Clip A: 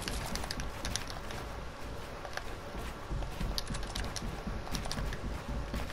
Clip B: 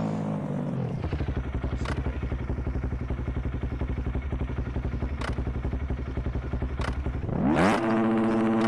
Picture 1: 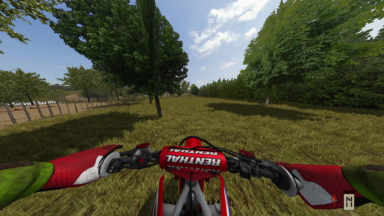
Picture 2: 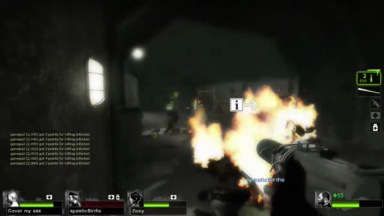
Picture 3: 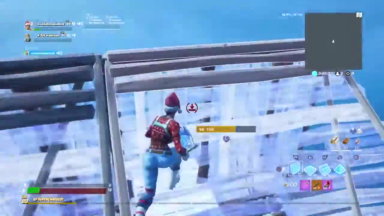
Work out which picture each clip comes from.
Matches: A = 3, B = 1